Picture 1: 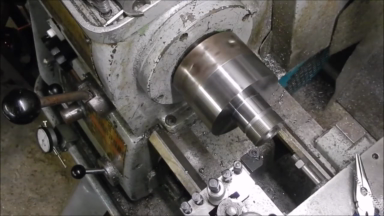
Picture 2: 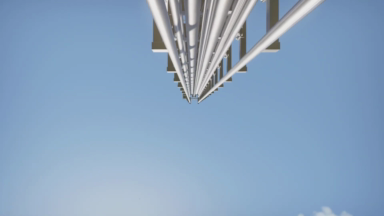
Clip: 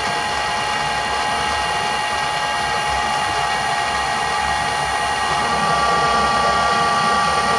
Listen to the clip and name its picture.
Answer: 1